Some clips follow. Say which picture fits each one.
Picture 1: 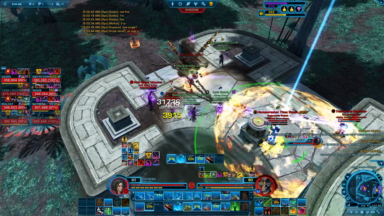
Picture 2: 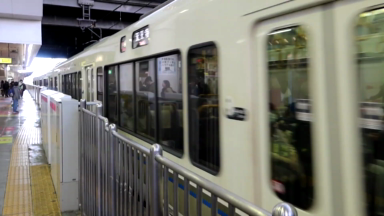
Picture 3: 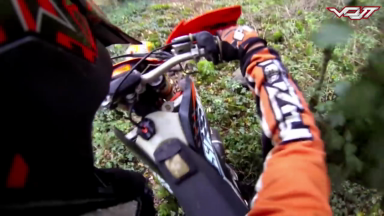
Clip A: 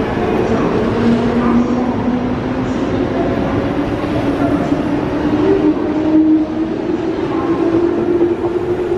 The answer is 2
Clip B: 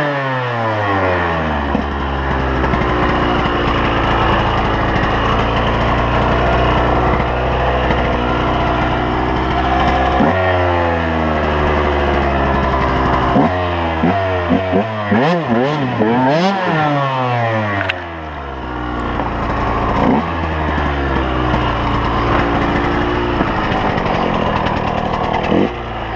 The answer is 3